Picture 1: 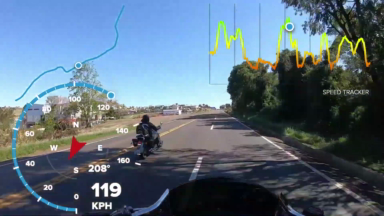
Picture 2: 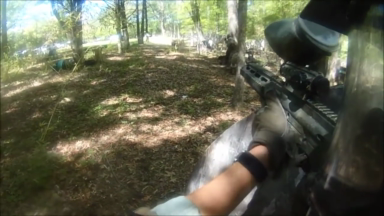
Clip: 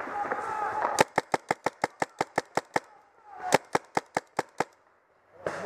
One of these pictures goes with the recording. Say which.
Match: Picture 2